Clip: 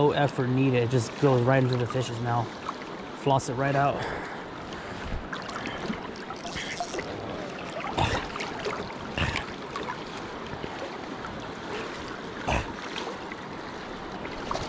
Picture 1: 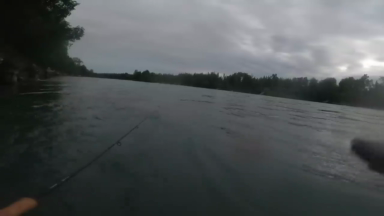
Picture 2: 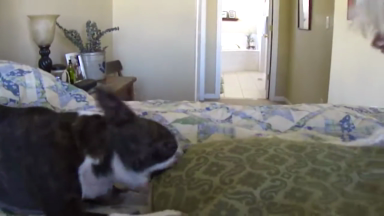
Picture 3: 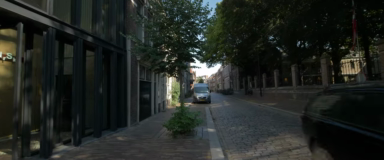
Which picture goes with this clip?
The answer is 1